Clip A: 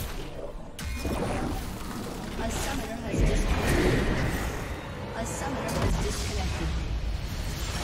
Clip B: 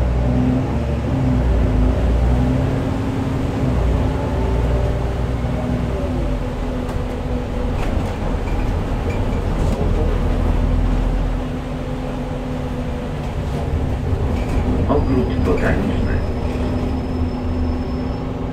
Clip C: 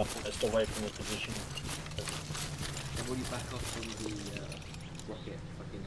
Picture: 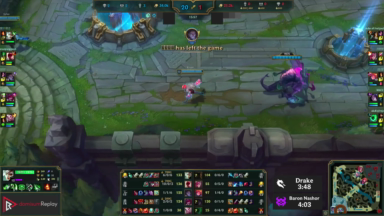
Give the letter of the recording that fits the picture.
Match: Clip A